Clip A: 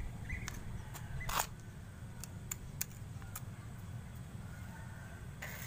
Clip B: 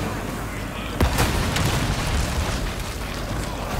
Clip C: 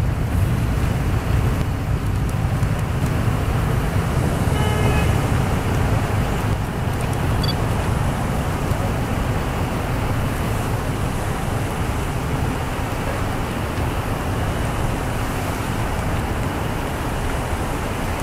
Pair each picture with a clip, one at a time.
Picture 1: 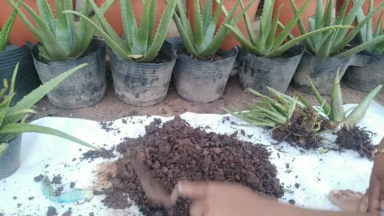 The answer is A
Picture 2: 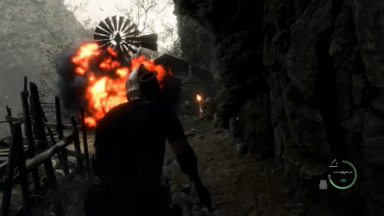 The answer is B